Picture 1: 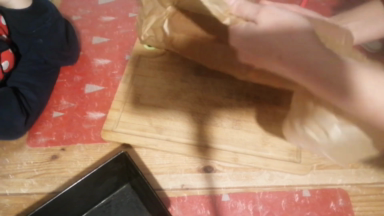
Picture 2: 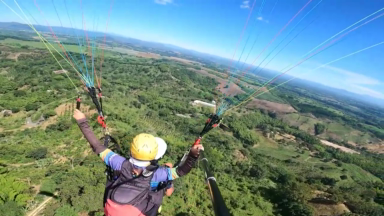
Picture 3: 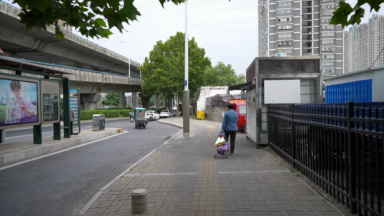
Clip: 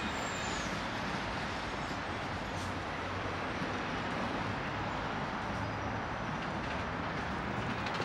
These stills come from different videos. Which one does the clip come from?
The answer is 3